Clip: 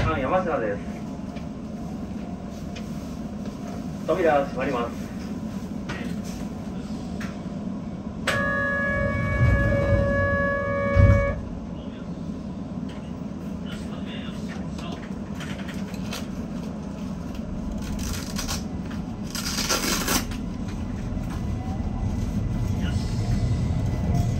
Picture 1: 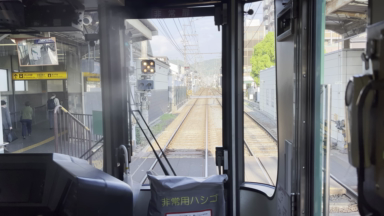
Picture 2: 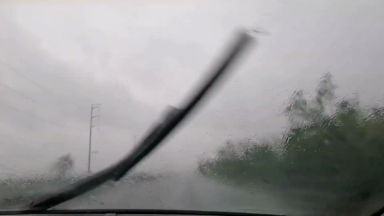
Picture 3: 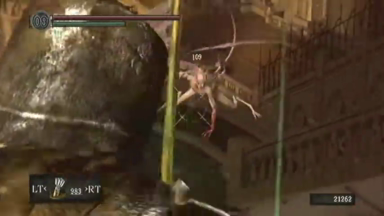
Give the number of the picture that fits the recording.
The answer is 1